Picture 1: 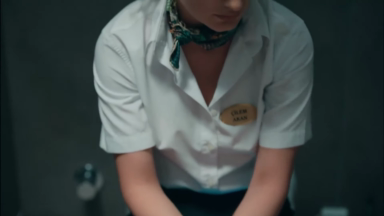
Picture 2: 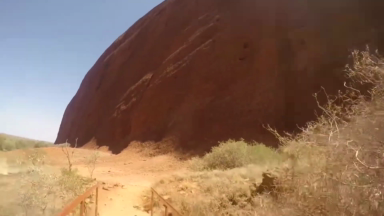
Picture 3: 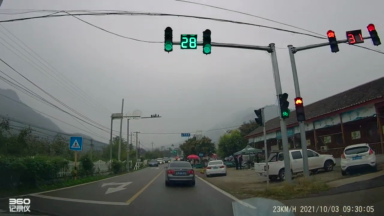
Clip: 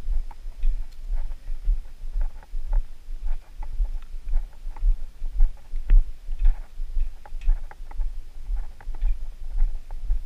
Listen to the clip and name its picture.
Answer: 2